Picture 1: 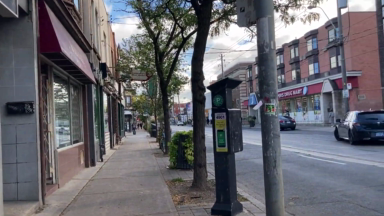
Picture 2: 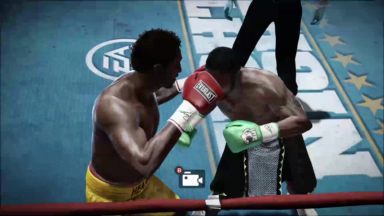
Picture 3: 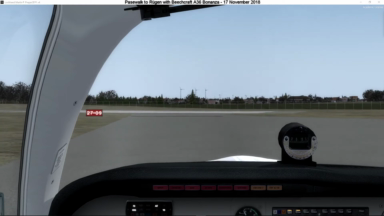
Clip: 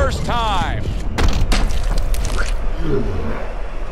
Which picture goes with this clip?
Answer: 2